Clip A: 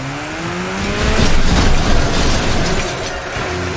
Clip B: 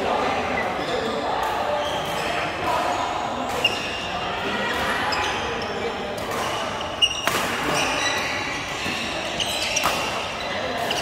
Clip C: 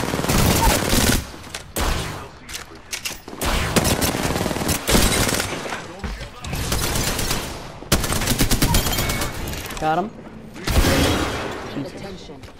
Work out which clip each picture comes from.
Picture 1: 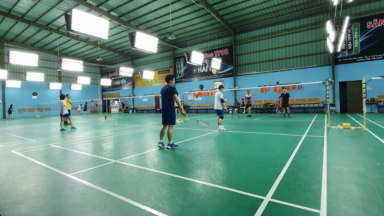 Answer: B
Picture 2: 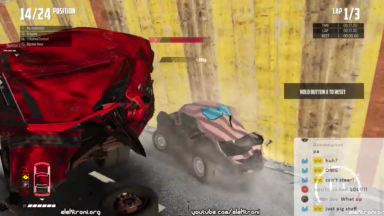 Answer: A